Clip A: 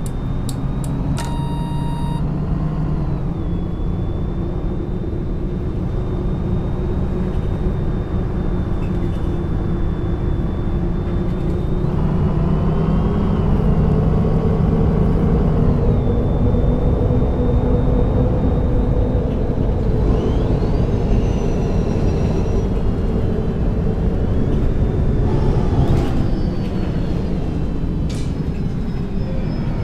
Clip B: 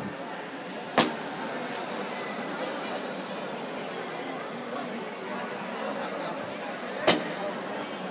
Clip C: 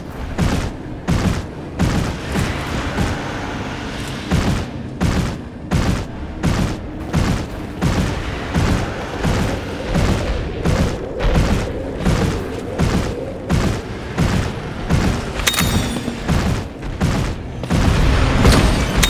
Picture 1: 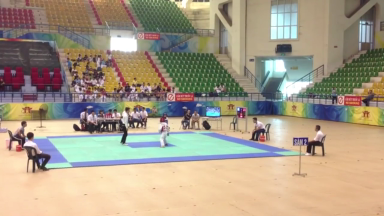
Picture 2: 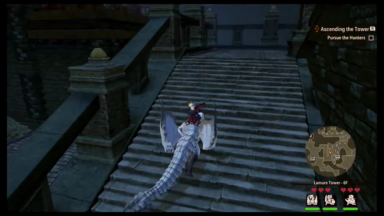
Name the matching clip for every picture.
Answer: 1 B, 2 C